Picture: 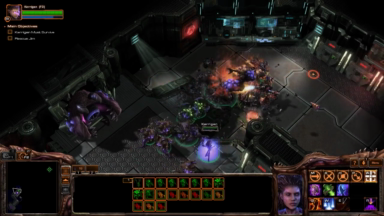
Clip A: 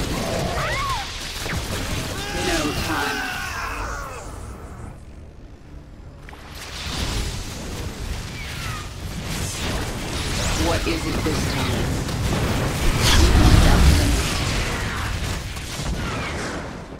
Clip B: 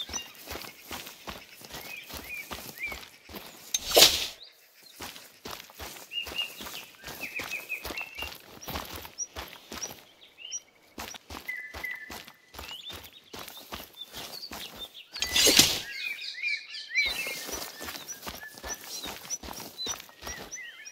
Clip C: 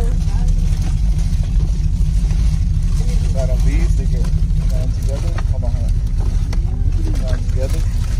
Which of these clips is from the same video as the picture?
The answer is A